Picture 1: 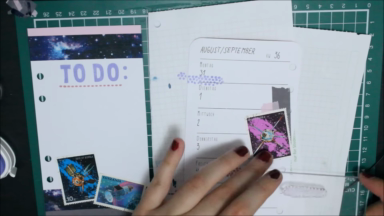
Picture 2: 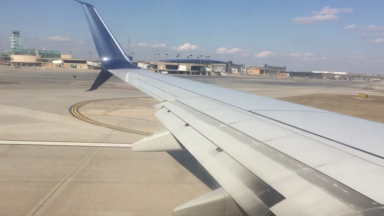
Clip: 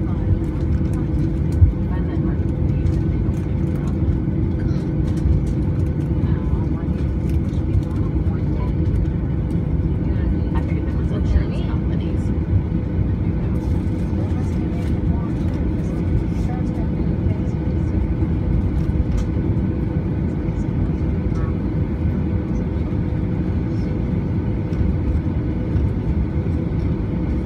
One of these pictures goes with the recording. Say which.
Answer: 2